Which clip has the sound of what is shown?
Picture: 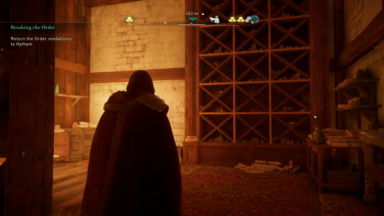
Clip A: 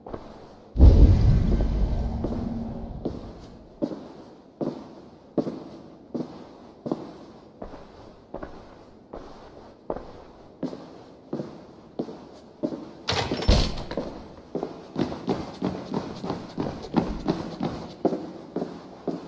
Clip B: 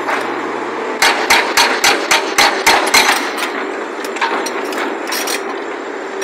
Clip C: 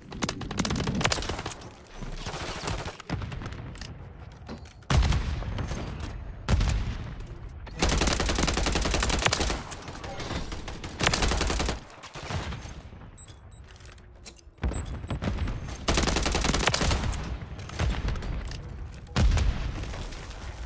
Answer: A